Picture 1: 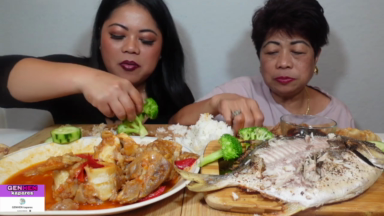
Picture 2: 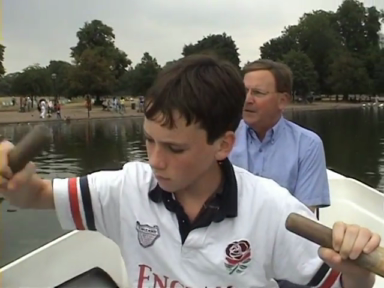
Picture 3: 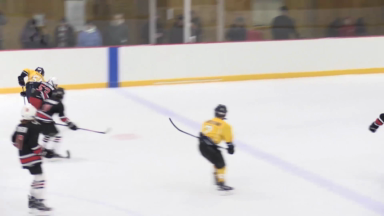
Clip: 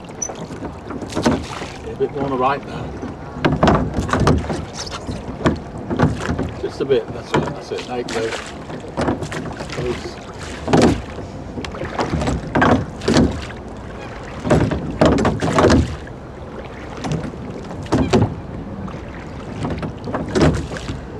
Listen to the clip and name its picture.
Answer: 2